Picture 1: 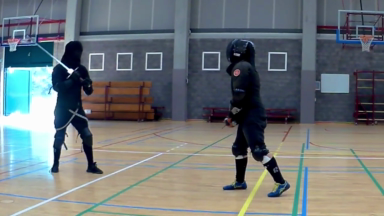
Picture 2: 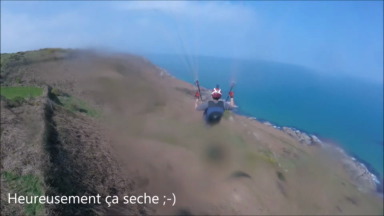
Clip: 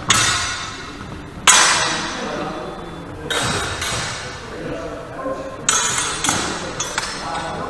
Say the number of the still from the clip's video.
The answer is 1